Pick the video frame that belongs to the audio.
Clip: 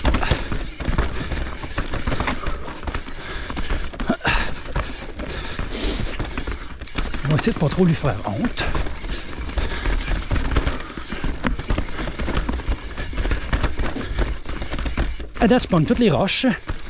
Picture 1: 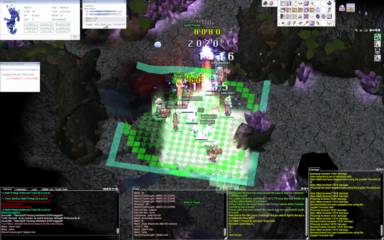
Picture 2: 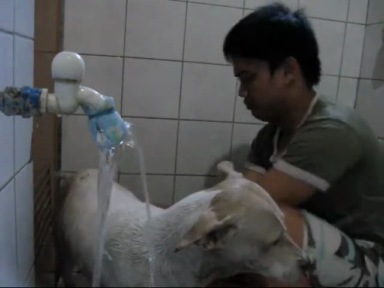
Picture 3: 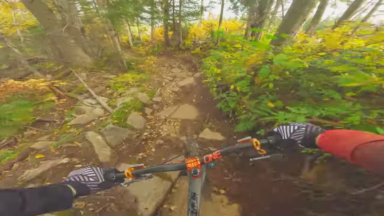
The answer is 3